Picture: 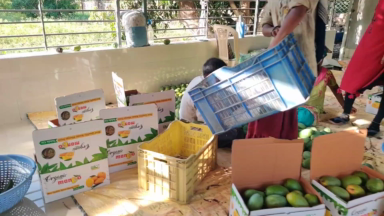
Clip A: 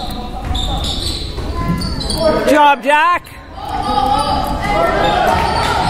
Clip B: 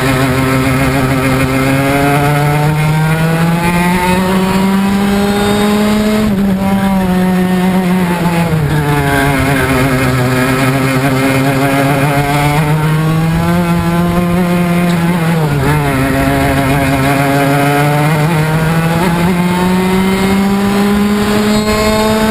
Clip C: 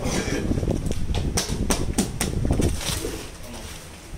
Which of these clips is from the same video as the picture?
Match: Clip C